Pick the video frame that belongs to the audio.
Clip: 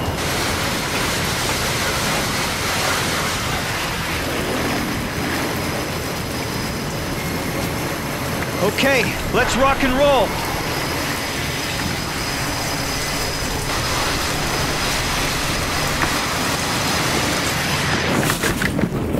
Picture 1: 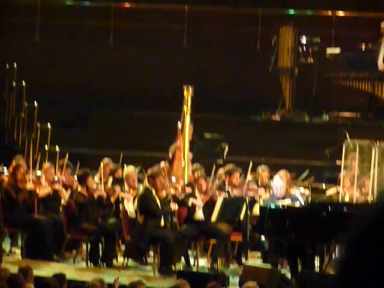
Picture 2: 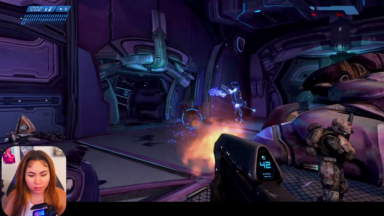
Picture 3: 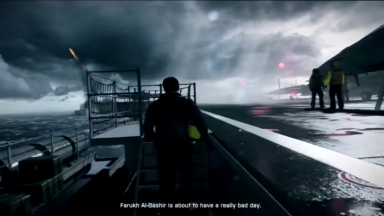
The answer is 3